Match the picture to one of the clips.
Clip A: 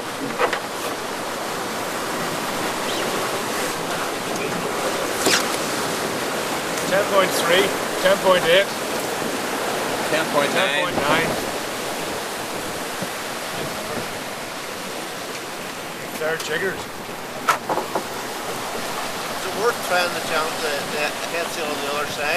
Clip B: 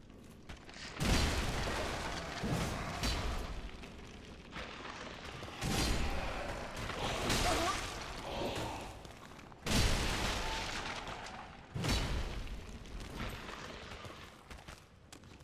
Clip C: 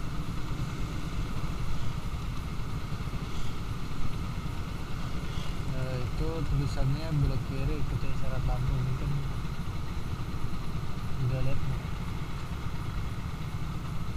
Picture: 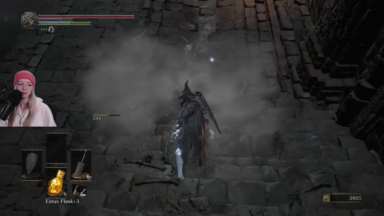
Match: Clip B